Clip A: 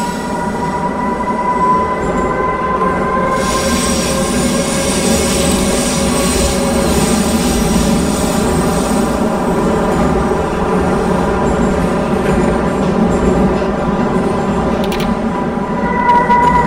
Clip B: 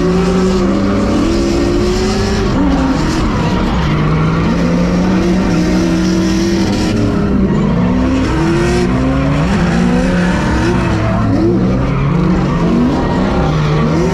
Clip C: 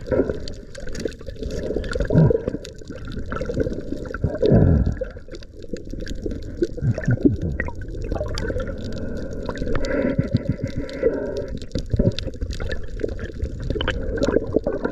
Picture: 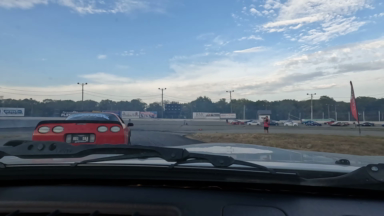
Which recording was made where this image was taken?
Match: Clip B